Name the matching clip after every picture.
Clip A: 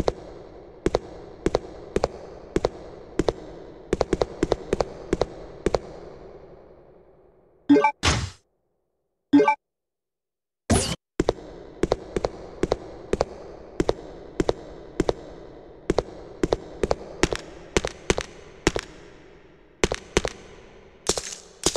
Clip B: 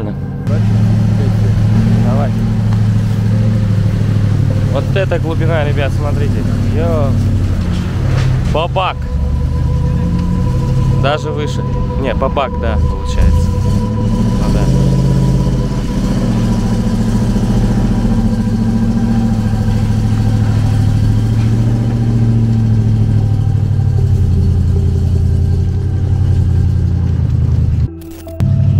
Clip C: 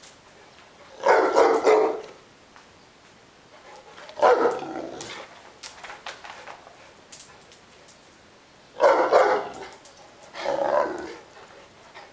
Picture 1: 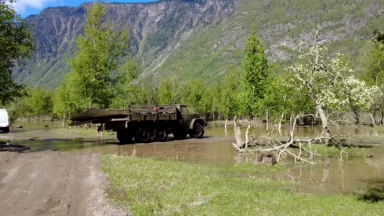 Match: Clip B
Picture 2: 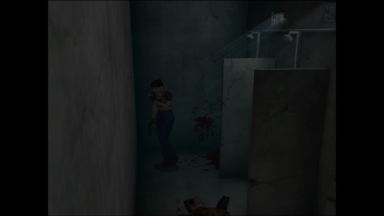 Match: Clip A